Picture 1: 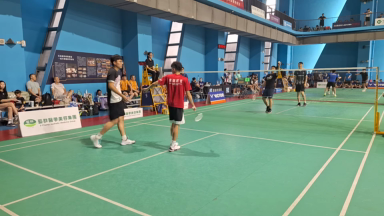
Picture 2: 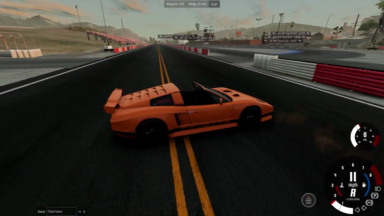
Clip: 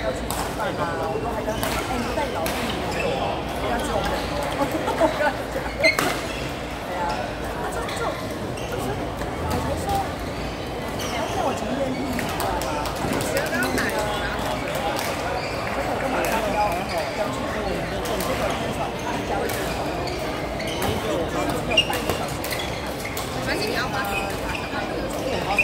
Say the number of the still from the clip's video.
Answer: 1